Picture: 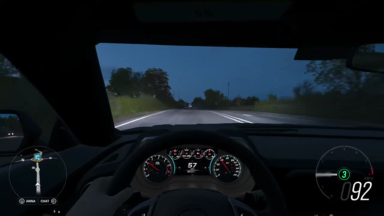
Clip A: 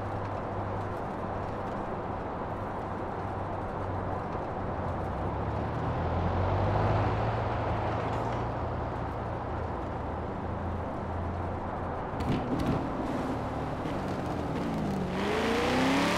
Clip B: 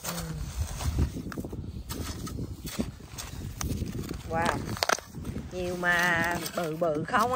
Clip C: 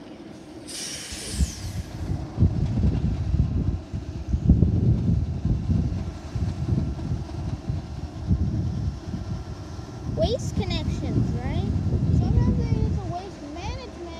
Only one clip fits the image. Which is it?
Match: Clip A